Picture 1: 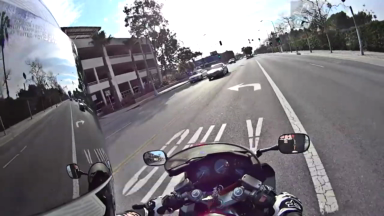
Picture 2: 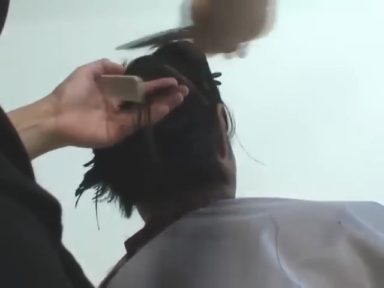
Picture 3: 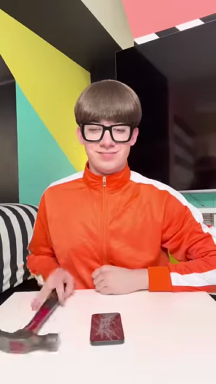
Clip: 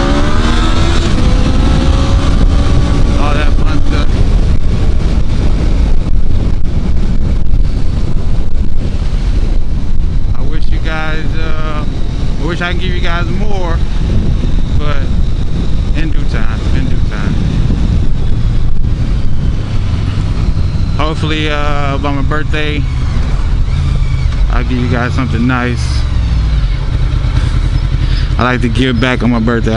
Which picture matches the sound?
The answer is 1